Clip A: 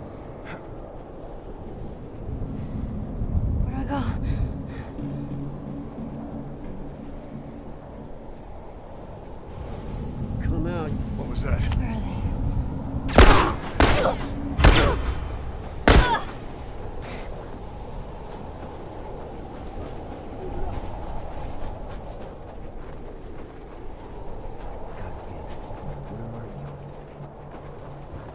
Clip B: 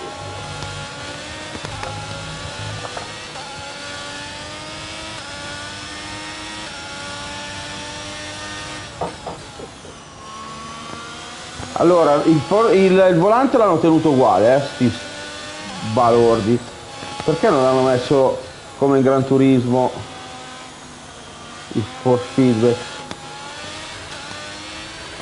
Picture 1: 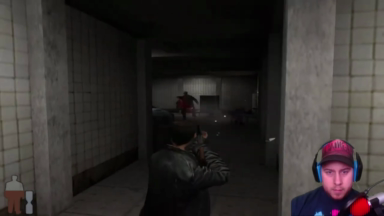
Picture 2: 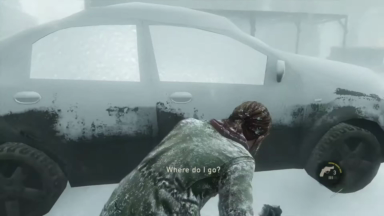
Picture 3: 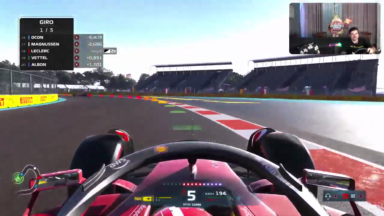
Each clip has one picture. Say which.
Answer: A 2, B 3